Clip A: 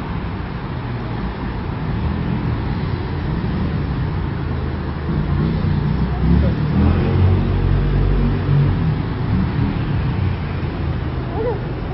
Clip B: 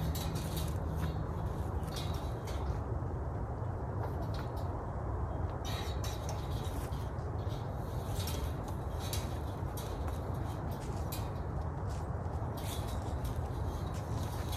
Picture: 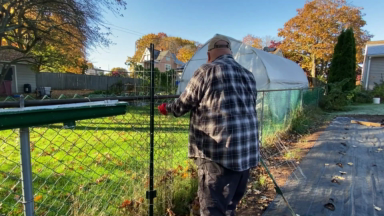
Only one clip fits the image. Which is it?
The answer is B